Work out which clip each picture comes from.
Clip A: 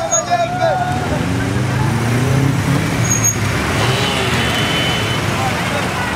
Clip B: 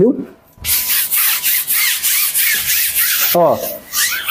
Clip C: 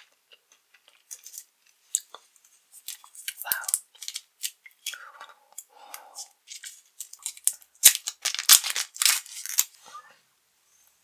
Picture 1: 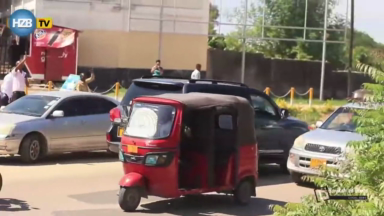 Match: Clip A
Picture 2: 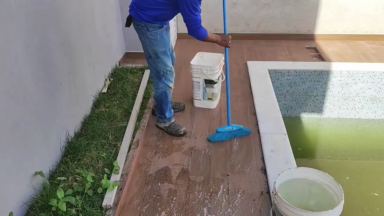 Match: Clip B